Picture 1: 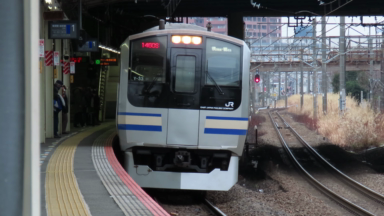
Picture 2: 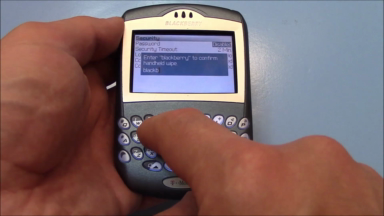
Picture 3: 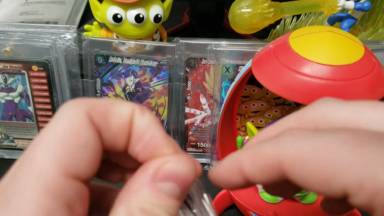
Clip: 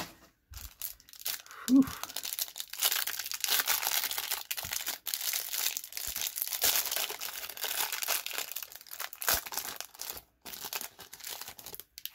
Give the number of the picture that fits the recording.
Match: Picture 3